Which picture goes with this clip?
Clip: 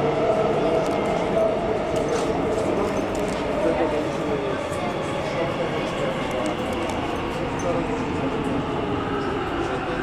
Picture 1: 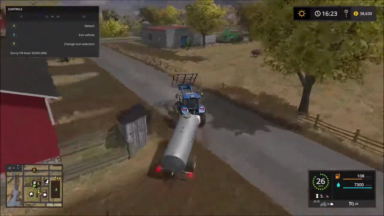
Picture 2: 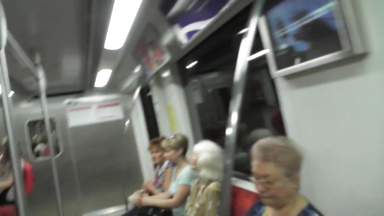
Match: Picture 2